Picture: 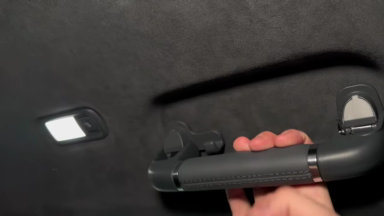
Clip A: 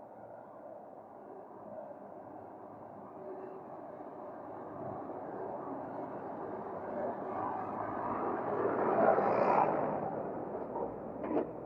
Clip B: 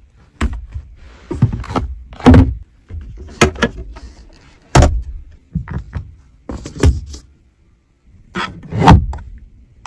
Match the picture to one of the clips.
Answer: B